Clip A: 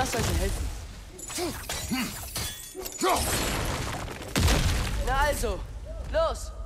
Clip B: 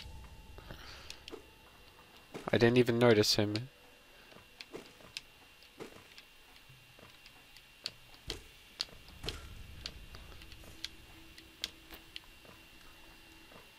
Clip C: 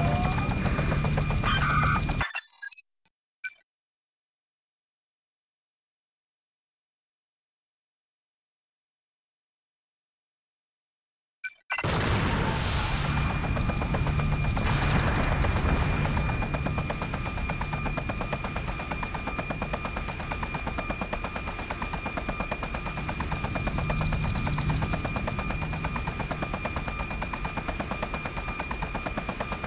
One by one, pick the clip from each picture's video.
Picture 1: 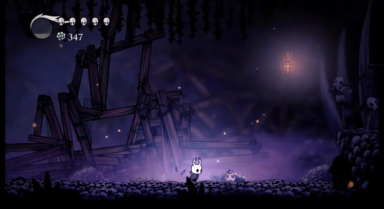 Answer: B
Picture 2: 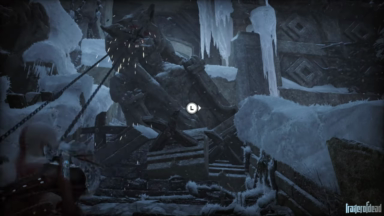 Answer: A